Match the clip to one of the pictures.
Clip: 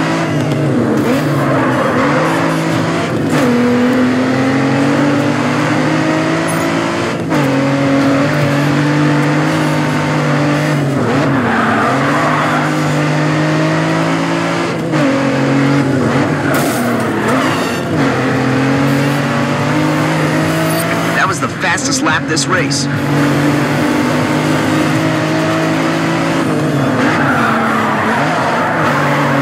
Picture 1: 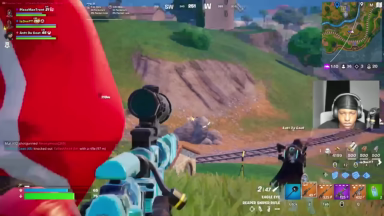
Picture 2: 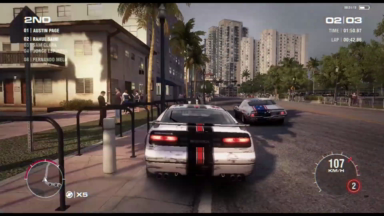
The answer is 2